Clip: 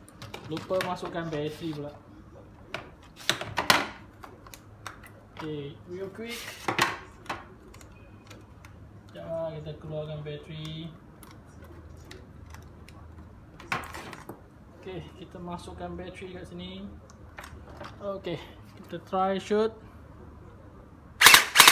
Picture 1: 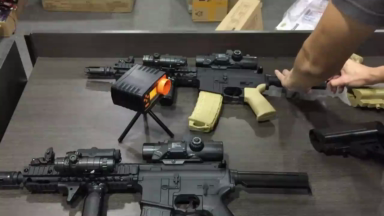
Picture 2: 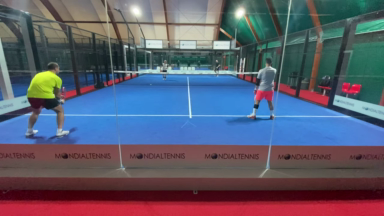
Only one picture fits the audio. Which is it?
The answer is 1